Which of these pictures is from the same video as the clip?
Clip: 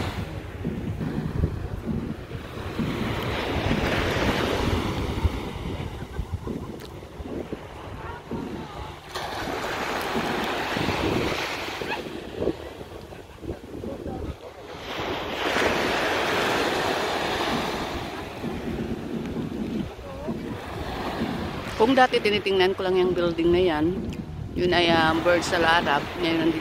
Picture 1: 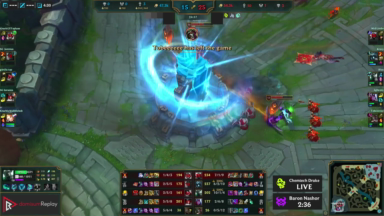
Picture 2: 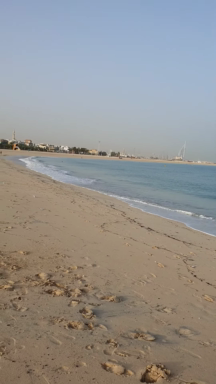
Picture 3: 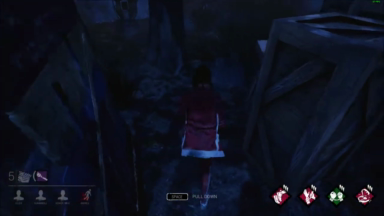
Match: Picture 2